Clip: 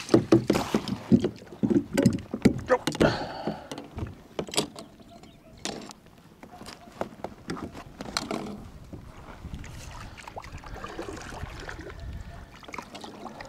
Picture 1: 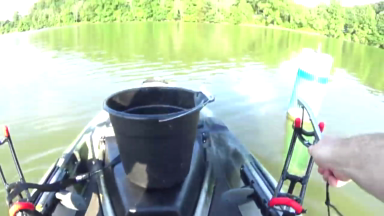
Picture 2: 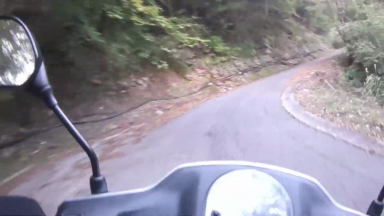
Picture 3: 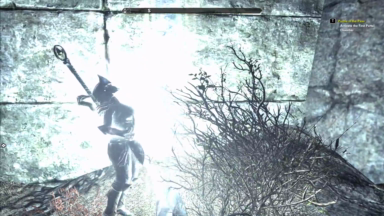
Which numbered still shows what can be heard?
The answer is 1